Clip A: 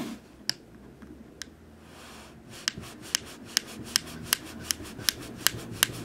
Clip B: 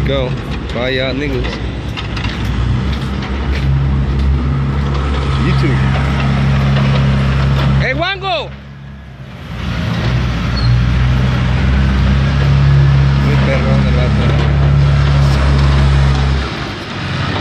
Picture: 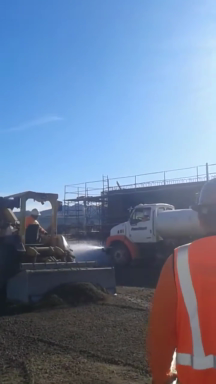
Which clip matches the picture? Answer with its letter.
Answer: B